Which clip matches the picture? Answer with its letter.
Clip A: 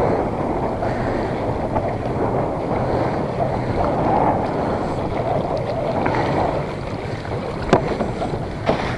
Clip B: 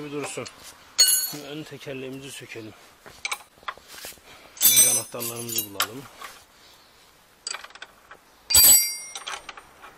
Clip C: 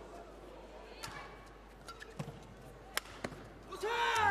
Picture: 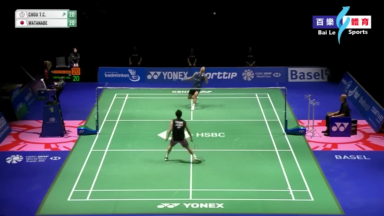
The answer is C